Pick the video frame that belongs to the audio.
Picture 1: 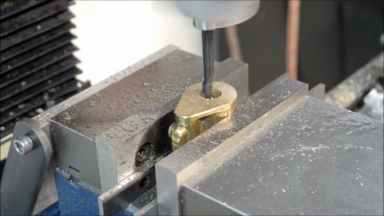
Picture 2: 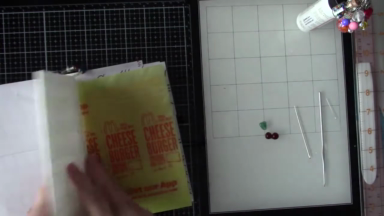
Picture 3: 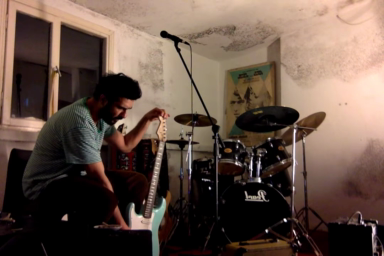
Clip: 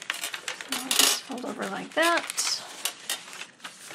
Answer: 2